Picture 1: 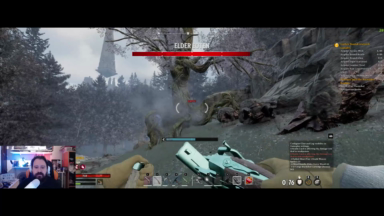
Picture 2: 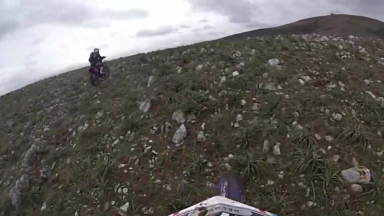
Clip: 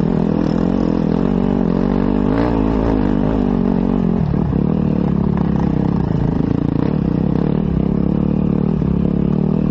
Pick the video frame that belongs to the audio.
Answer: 2